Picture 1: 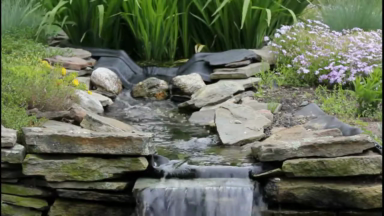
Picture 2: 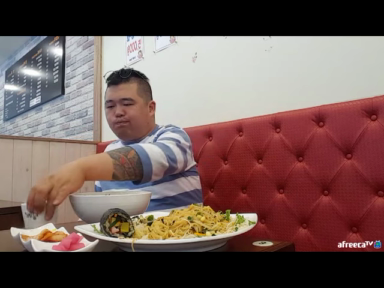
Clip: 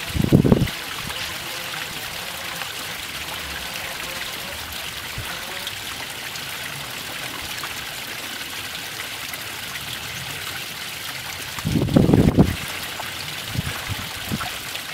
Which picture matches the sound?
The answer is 1